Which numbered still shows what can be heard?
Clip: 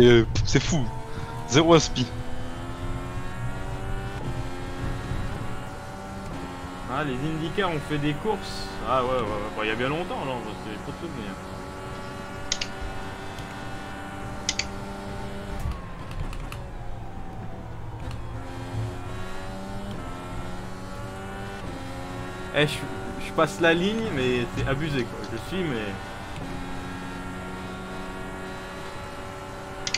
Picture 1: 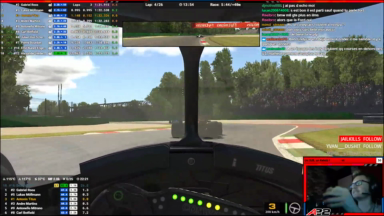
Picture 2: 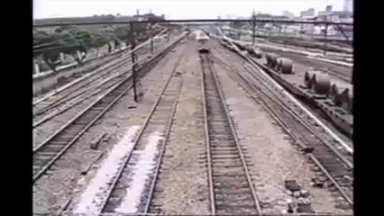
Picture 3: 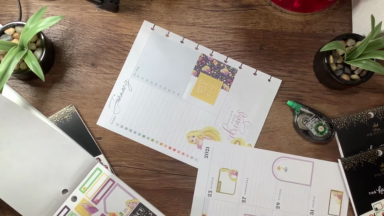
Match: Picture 1